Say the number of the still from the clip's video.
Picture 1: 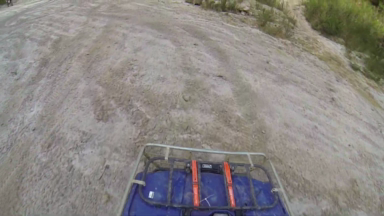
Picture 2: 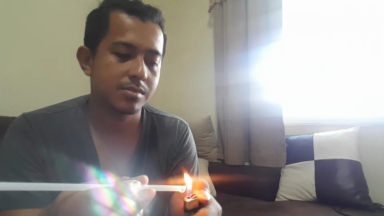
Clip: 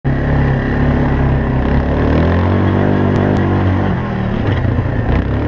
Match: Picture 1